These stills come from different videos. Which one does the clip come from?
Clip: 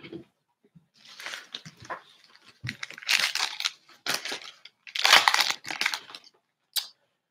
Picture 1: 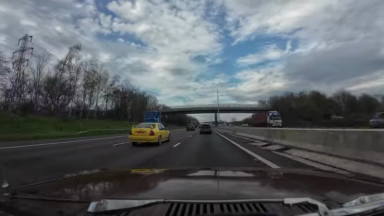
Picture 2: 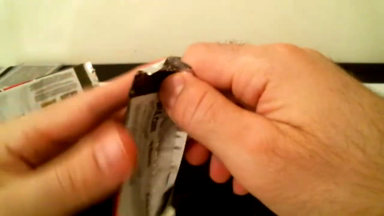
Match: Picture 2